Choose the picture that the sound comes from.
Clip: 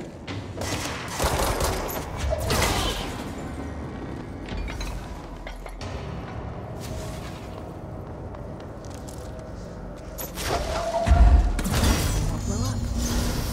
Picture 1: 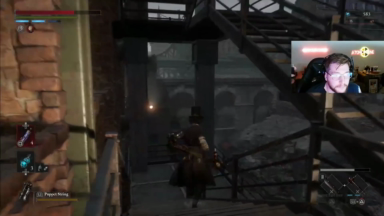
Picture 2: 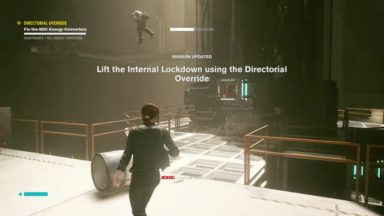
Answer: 2